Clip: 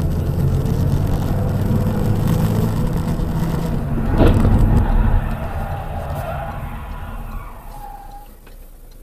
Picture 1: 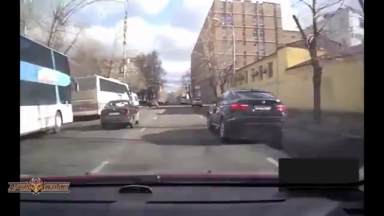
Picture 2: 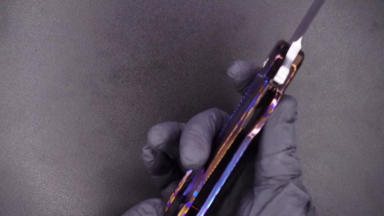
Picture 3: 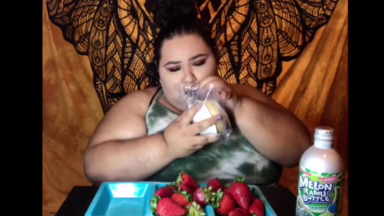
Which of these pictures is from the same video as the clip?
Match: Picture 1